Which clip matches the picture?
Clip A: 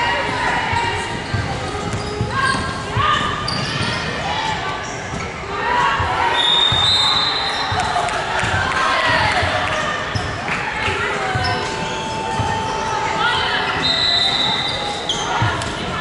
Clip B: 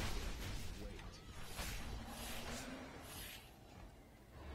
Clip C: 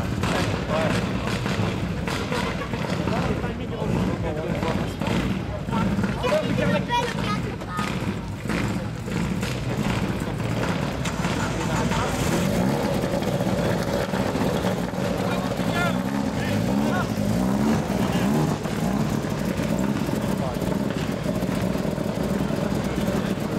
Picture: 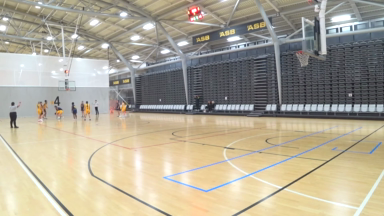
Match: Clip A